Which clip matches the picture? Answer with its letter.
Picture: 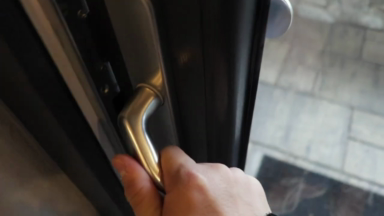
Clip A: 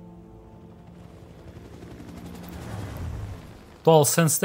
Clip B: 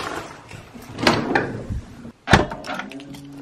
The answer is B